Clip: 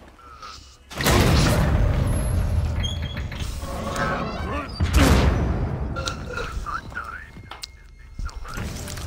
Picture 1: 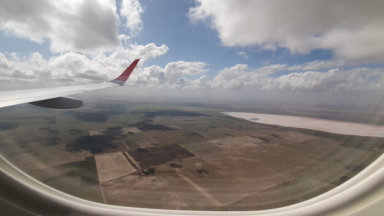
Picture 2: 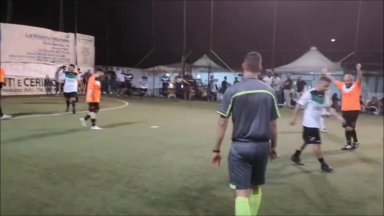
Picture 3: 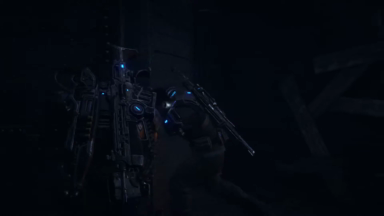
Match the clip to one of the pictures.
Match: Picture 3